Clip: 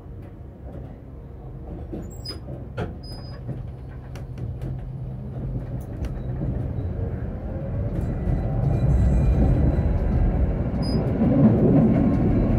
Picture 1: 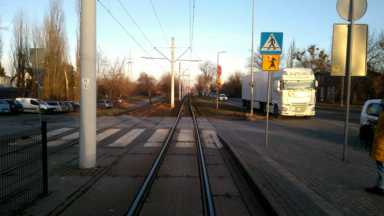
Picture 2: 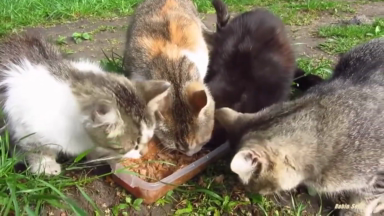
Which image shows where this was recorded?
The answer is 1